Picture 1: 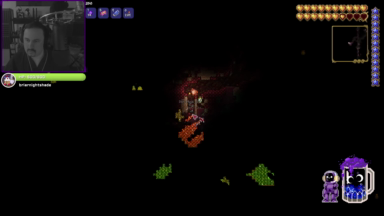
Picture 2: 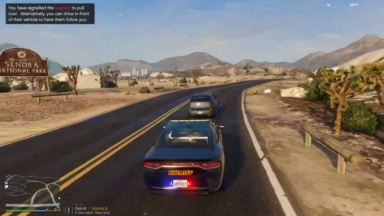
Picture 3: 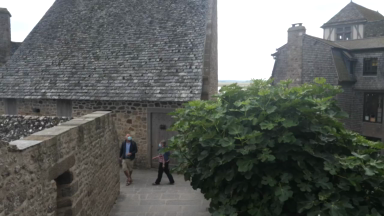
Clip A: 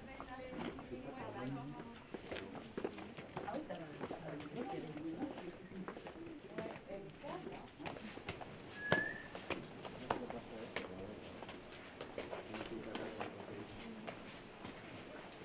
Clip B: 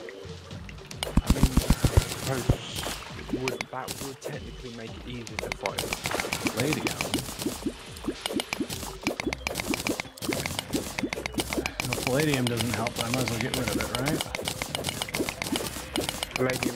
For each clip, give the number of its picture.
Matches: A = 3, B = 1